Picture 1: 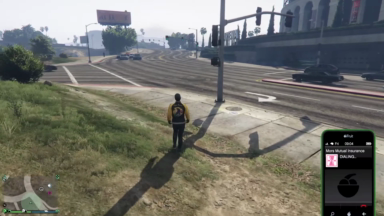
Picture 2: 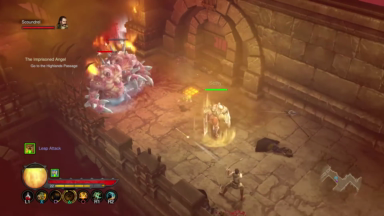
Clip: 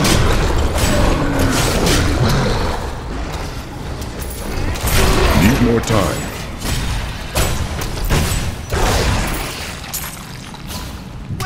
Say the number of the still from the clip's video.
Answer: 2